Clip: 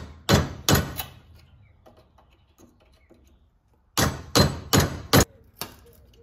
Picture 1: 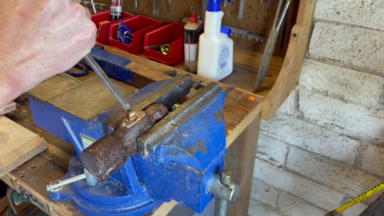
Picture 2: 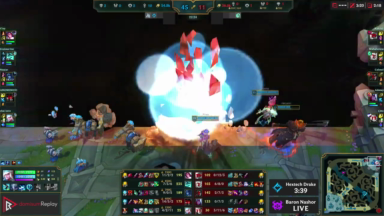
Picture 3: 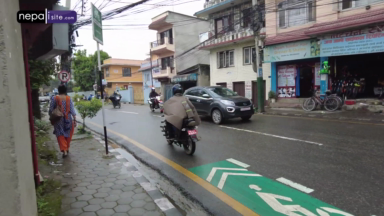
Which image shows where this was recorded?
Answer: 1